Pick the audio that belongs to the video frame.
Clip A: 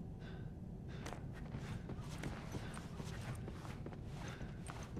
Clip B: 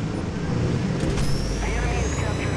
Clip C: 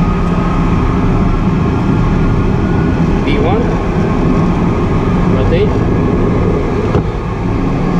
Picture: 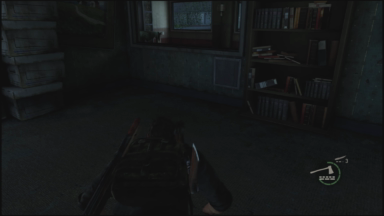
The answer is A